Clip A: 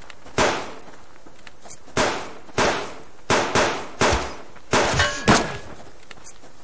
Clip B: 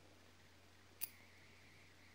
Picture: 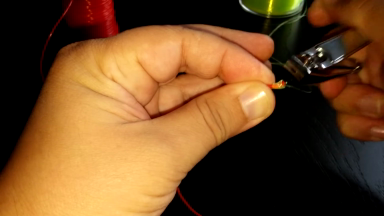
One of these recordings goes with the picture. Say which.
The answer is B